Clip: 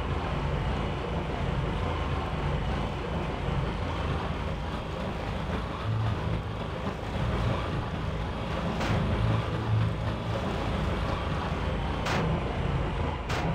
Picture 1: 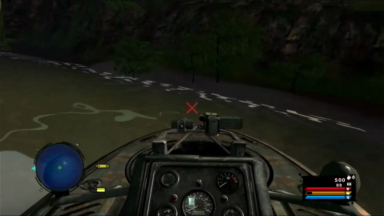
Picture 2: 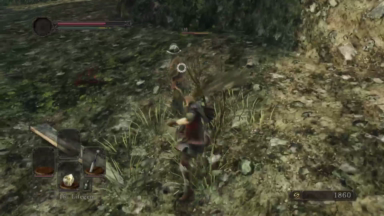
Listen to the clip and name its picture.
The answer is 1